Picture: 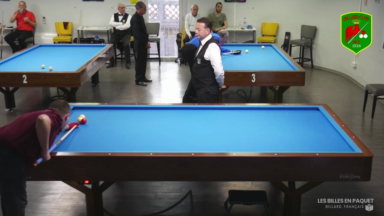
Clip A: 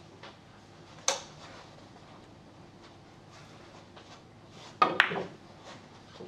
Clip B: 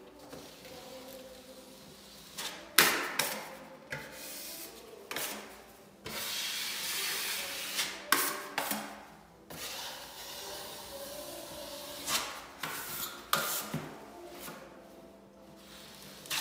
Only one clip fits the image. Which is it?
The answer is A